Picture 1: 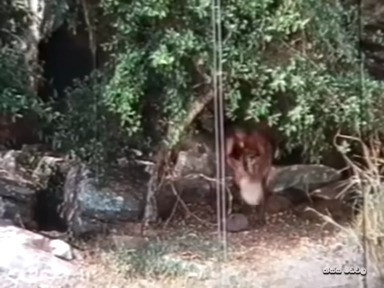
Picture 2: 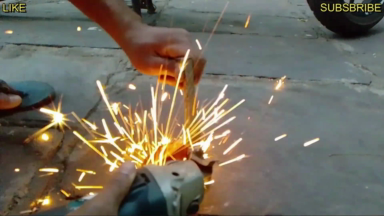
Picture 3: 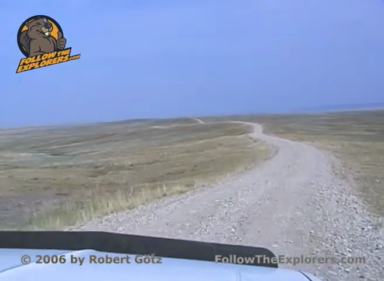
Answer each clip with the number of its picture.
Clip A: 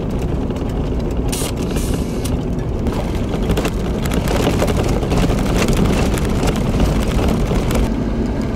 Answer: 3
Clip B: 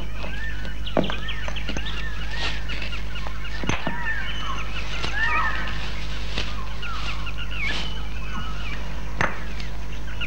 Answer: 1